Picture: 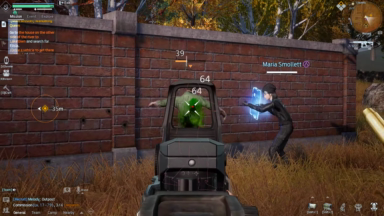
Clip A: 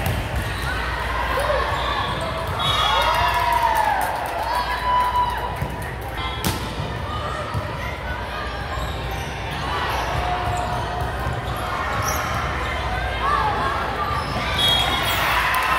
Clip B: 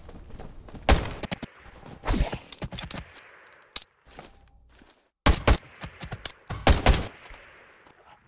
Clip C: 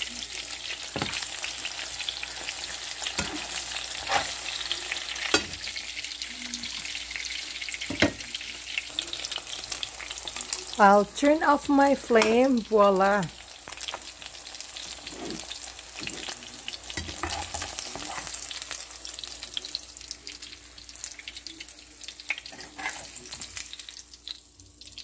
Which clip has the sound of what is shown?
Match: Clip B